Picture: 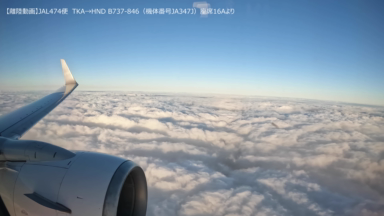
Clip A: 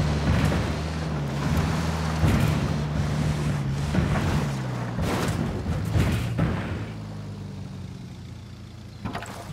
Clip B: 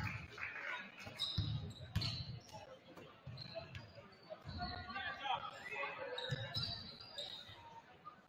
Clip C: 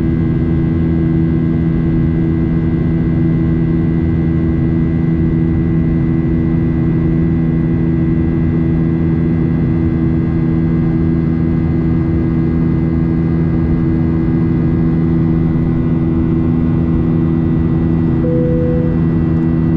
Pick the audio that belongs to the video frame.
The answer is C